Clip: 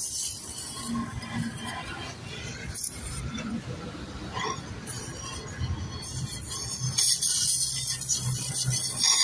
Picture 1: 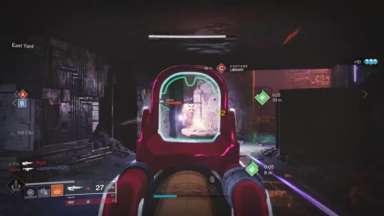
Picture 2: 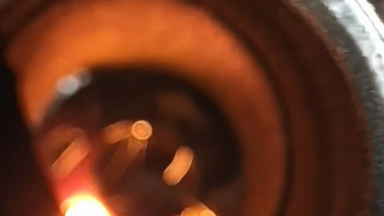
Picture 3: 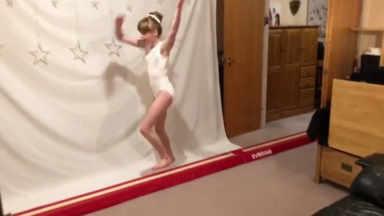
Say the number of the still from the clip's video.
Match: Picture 2